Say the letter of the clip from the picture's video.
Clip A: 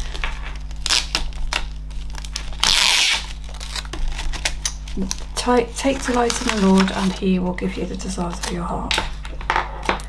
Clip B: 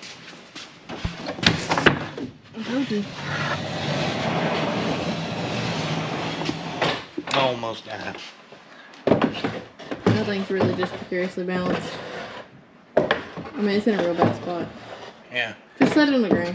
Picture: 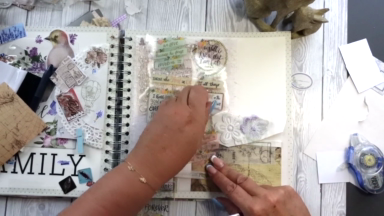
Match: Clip A